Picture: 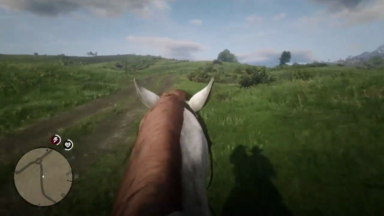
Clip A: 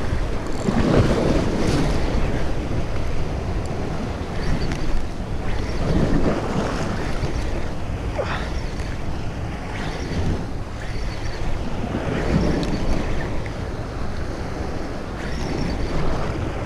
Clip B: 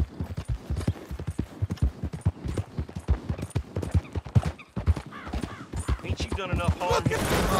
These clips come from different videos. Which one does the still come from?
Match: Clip B